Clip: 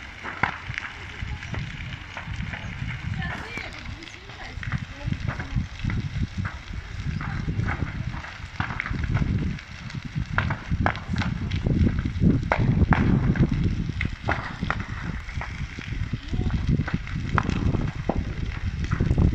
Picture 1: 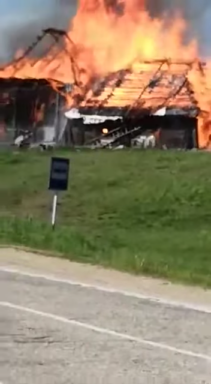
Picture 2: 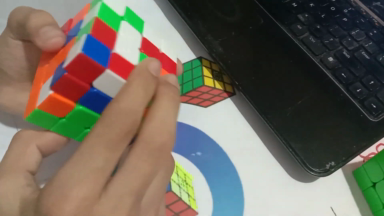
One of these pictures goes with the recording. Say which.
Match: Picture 1